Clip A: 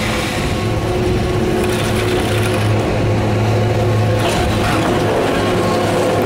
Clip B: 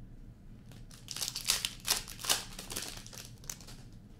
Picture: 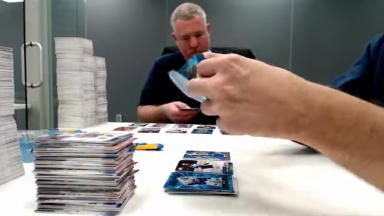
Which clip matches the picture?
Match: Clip B